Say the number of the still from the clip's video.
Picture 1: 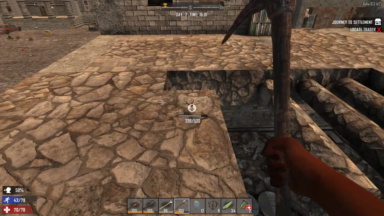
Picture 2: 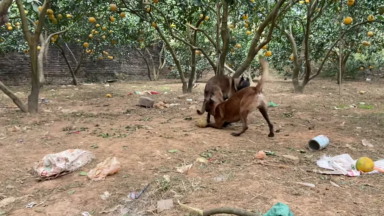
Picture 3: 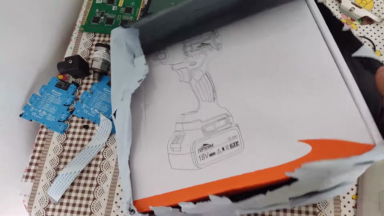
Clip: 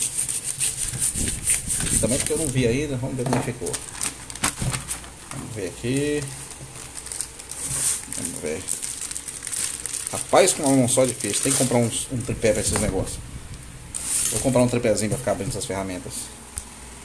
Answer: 3